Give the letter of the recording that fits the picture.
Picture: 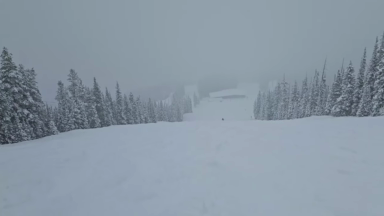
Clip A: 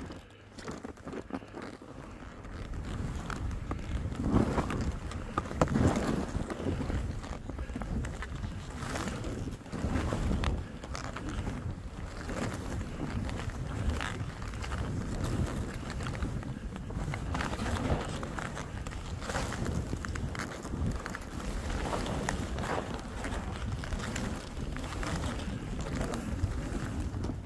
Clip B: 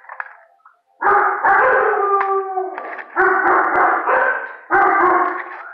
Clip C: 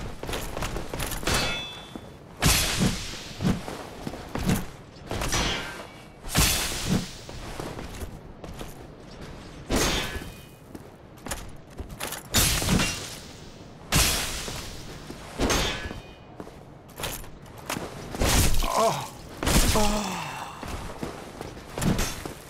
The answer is A